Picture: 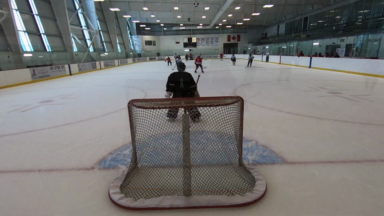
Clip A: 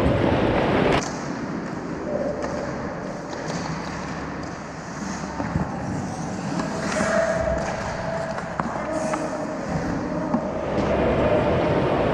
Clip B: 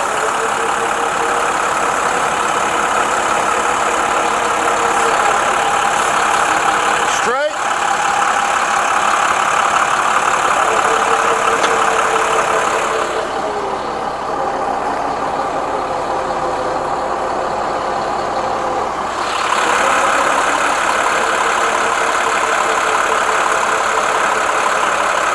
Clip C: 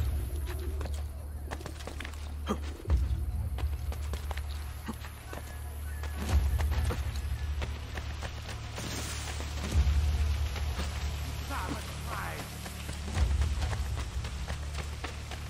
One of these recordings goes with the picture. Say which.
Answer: A